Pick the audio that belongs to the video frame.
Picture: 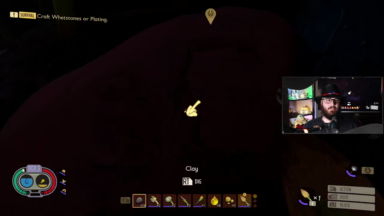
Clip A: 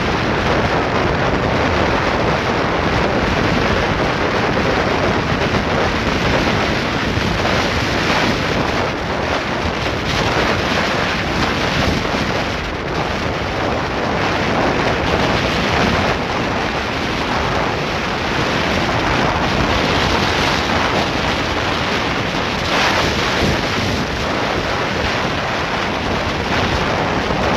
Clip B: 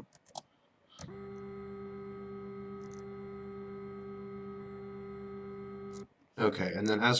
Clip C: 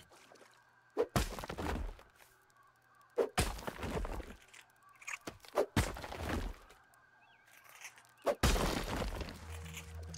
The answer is C